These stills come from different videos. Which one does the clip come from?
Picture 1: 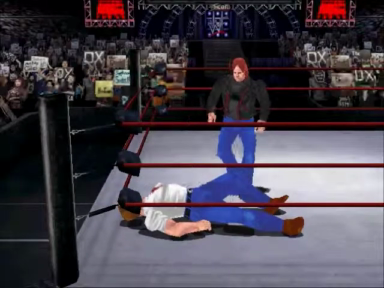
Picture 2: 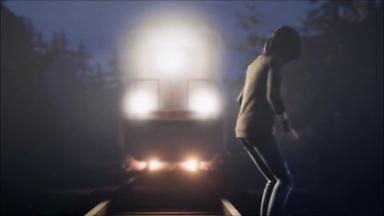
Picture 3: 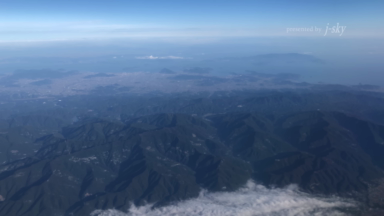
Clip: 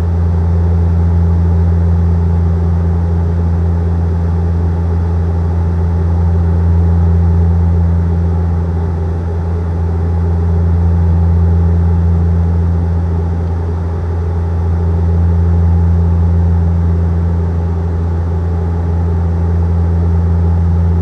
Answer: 3